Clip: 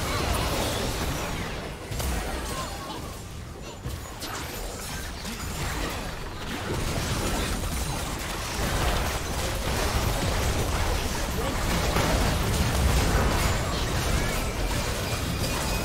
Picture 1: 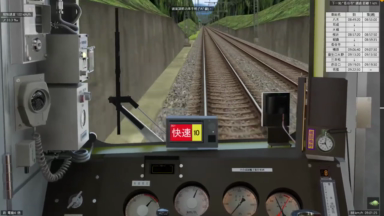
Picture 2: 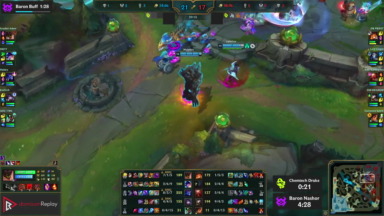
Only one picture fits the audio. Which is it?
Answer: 2